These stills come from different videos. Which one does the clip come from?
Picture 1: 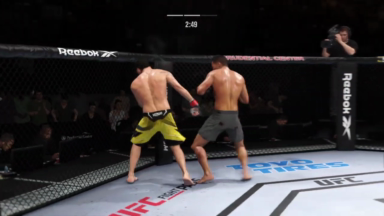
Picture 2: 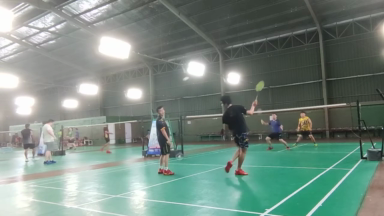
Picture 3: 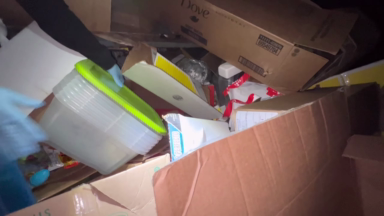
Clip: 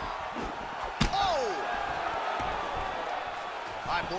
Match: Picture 1